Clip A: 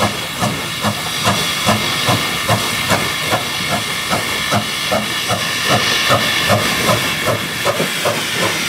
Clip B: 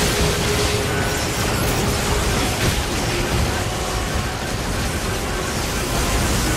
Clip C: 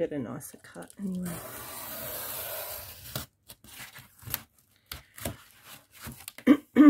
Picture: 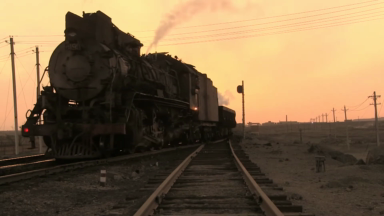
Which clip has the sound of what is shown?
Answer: A